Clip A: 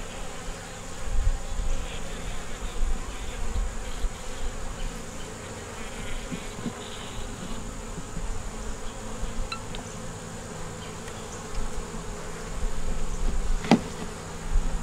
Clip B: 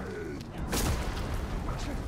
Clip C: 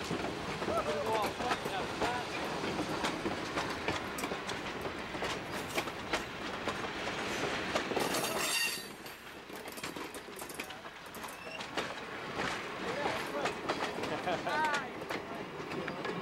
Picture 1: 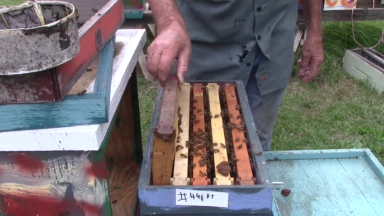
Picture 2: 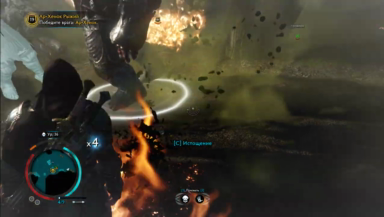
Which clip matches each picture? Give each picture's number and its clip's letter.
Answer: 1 A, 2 B